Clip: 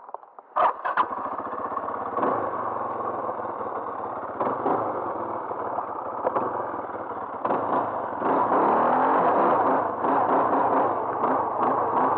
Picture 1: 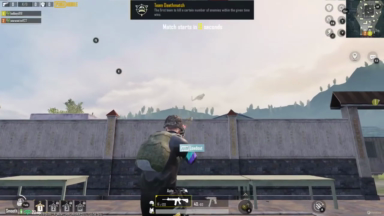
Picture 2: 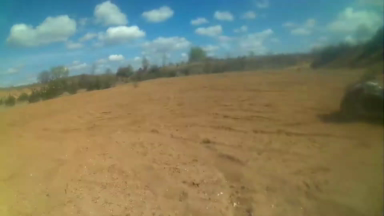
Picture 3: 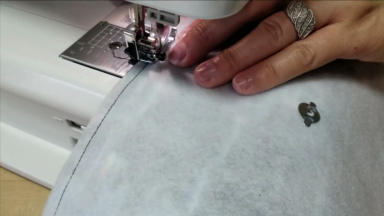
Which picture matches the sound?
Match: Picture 2